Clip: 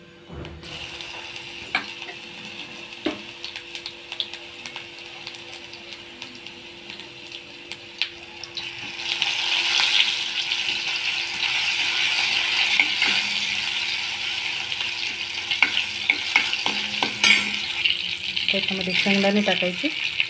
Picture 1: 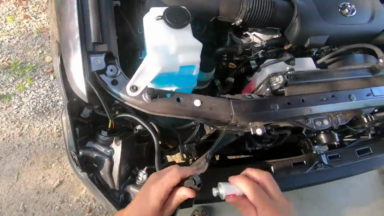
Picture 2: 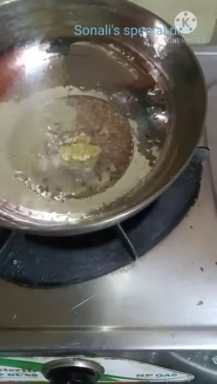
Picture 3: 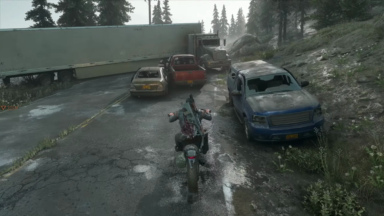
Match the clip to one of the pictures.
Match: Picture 2